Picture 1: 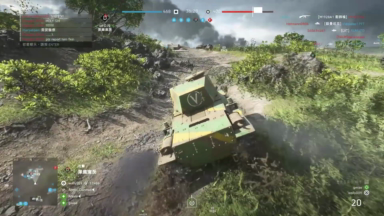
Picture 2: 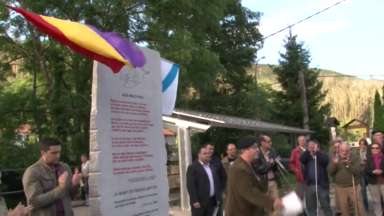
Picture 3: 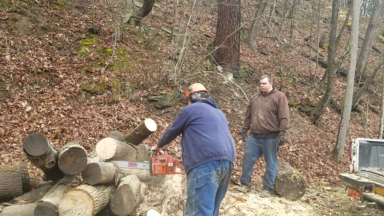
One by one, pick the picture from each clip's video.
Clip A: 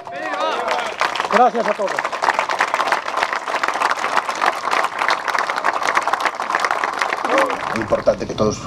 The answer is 2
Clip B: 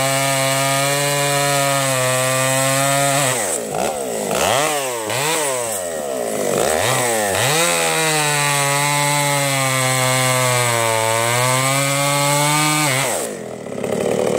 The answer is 3